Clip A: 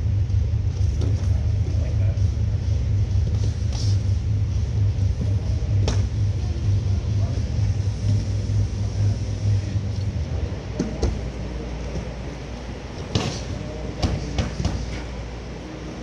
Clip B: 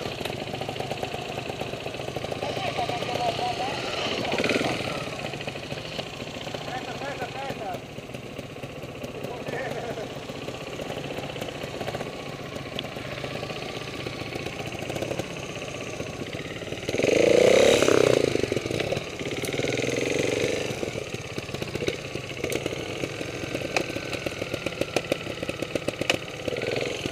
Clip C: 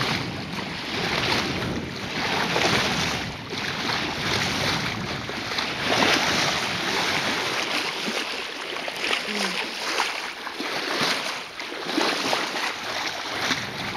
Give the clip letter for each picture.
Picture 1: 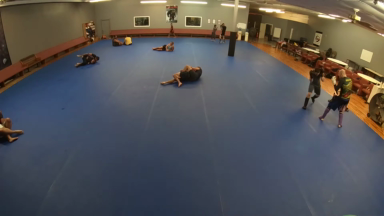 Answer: A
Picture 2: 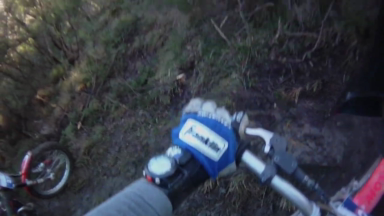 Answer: B